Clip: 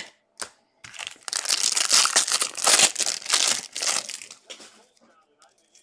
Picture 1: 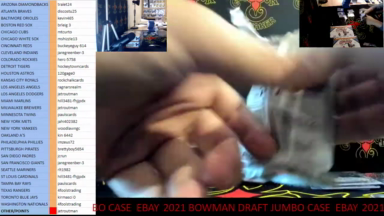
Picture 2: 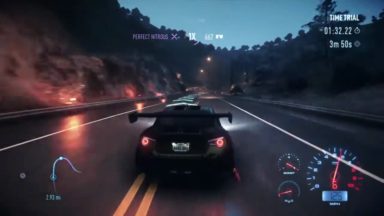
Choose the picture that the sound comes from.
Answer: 1